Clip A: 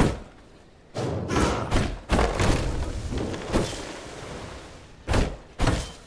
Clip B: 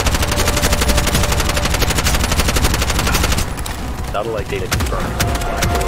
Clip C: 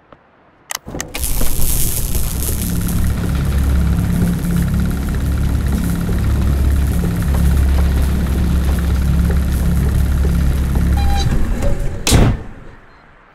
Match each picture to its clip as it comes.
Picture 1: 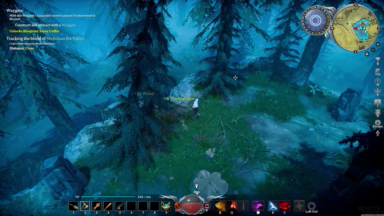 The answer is A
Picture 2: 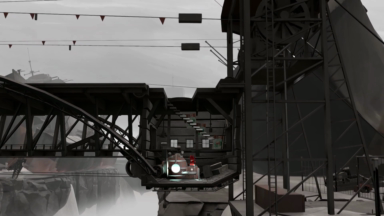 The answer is C